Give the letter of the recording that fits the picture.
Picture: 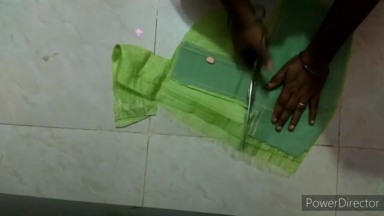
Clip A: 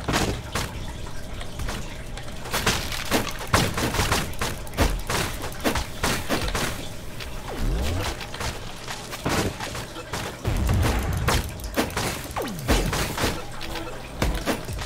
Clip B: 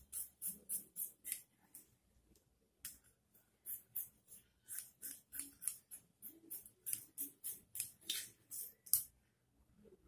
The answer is B